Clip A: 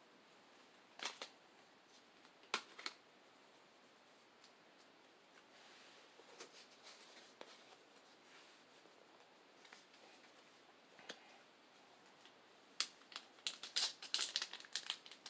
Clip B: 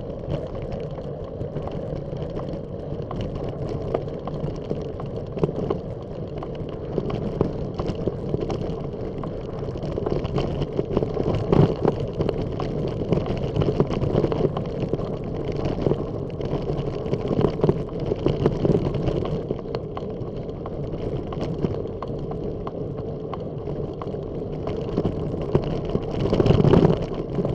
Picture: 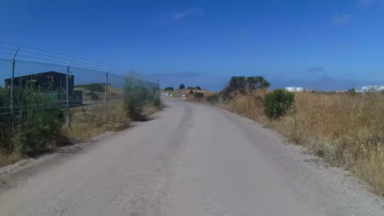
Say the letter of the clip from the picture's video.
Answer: B